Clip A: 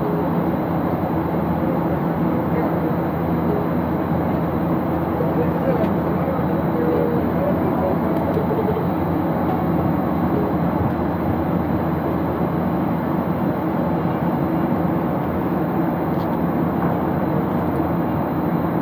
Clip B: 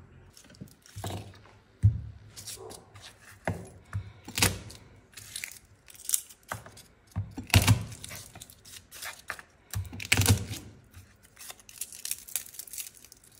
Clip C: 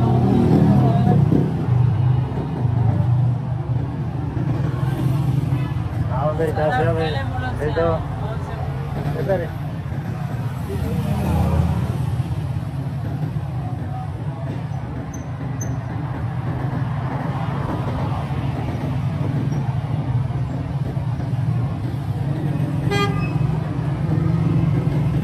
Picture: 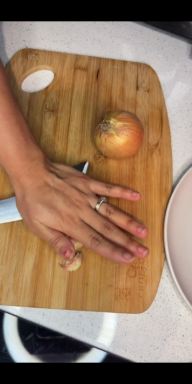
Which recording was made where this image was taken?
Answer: B